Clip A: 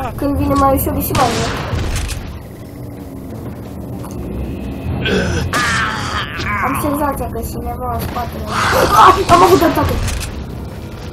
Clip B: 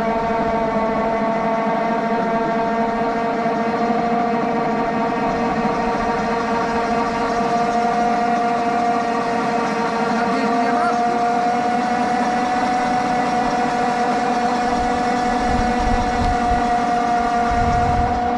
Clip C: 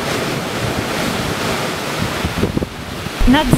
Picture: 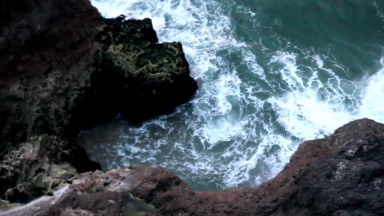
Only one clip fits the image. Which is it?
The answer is C